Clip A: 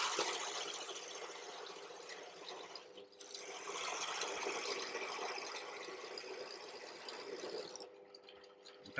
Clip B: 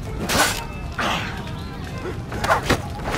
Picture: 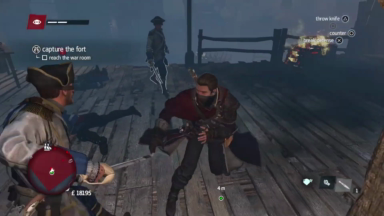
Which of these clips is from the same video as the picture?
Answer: B